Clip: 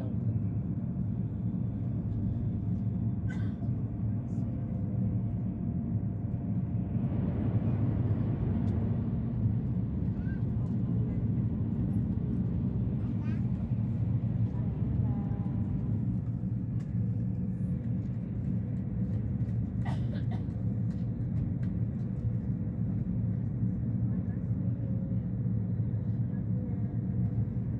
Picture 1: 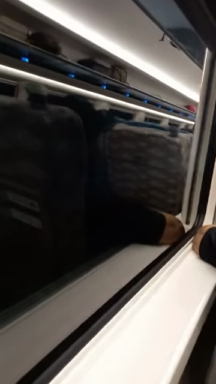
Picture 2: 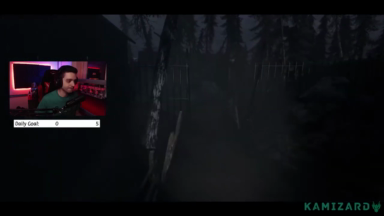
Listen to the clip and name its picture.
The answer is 1